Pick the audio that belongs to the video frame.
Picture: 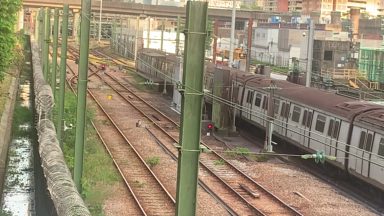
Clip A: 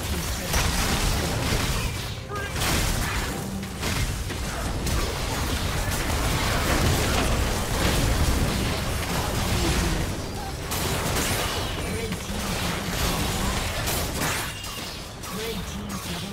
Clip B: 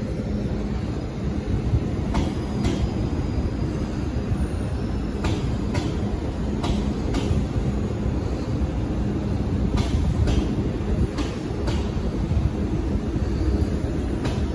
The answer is B